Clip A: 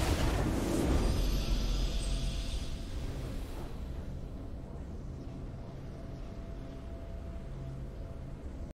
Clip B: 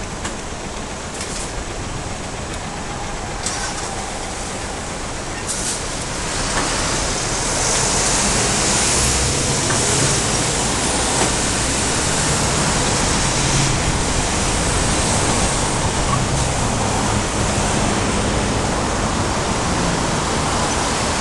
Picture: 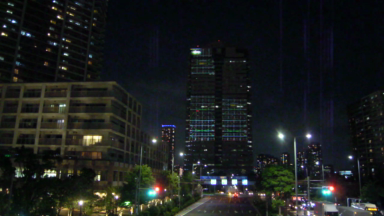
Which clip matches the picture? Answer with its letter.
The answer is B